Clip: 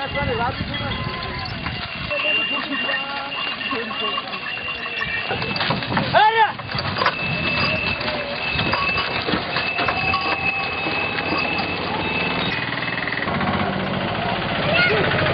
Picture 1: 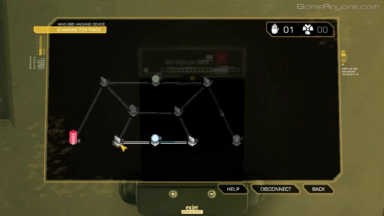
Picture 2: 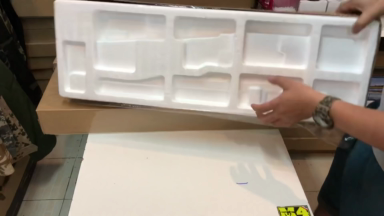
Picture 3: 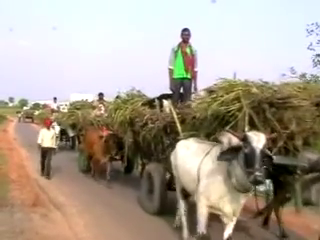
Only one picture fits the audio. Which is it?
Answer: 3